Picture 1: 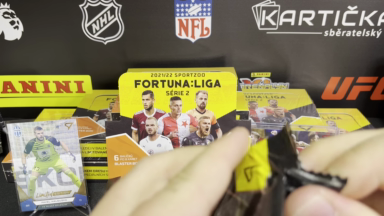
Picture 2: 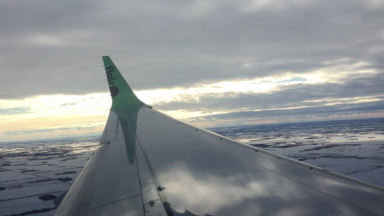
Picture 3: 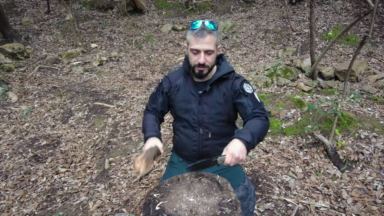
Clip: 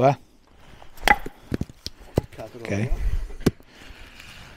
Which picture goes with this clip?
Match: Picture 3